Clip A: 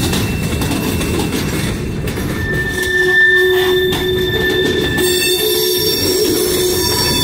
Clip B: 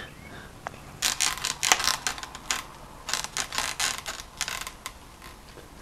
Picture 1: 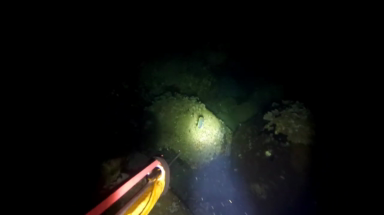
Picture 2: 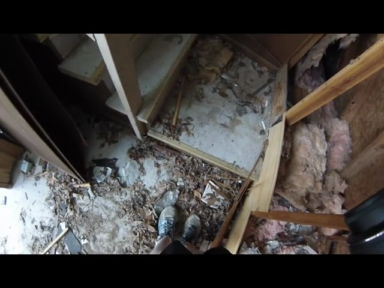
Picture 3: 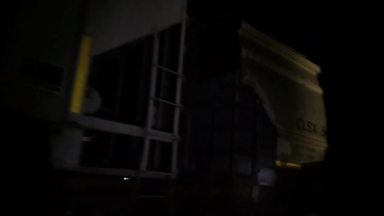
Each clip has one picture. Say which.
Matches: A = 3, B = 2